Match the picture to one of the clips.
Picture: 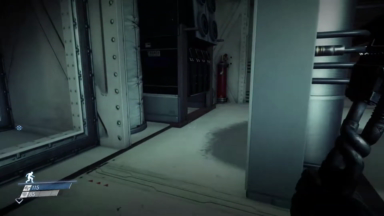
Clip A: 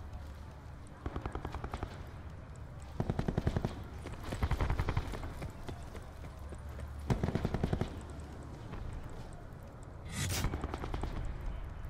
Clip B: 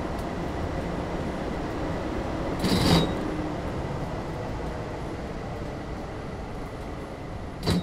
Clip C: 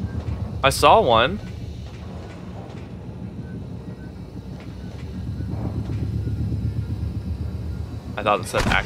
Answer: C